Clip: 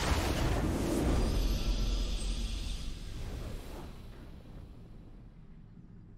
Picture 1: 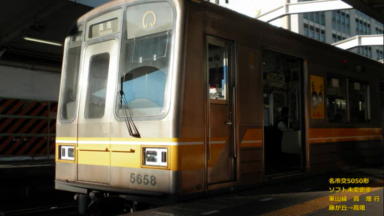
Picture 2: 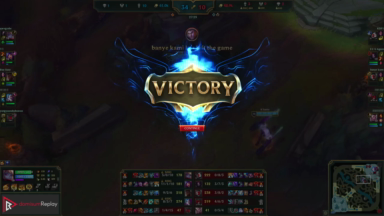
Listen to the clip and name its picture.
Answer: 2